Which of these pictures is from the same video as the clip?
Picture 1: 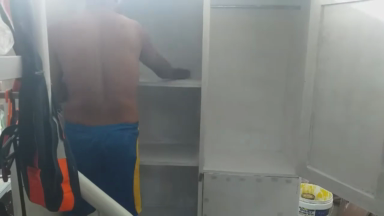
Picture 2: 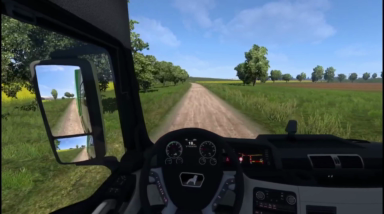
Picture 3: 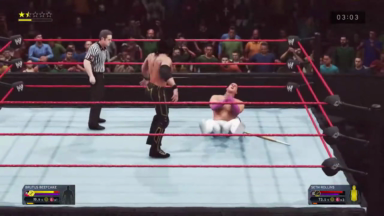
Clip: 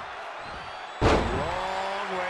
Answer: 3